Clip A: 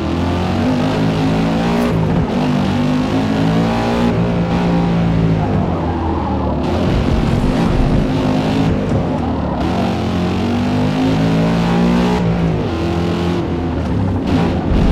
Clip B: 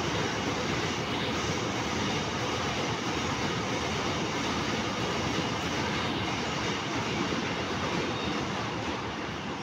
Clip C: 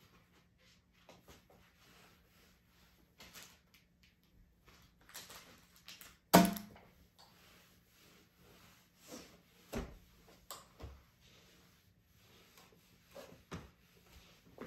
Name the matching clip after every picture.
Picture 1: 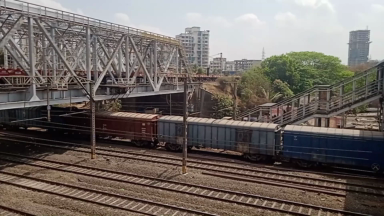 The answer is B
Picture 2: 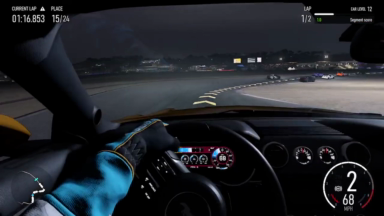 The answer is A